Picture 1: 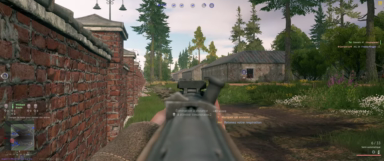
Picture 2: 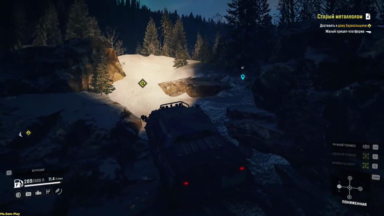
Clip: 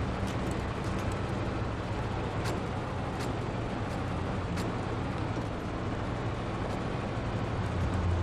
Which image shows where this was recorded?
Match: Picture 2